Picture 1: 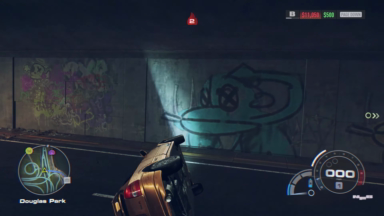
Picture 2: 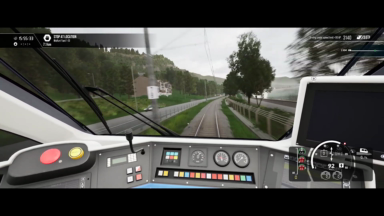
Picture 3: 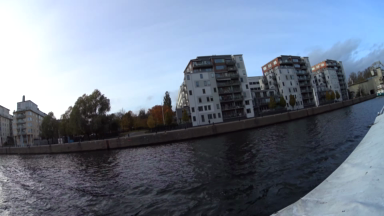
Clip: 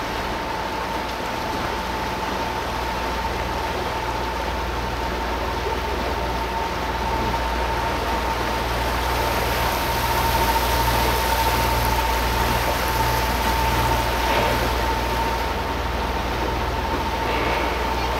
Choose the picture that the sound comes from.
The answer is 3